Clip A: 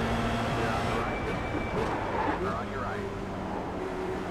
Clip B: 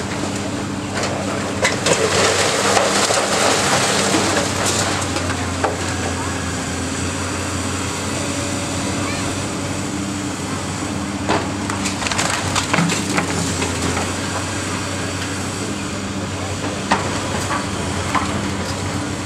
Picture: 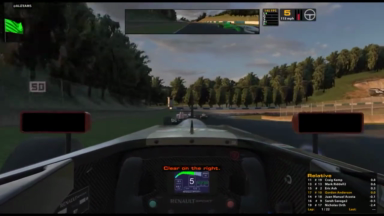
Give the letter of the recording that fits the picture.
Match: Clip A